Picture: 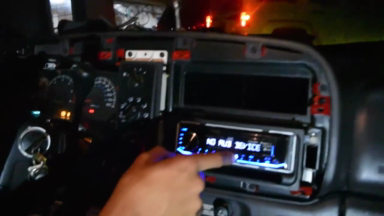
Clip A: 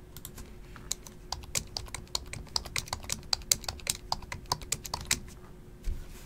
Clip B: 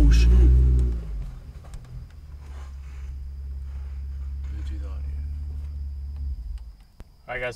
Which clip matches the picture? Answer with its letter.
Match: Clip B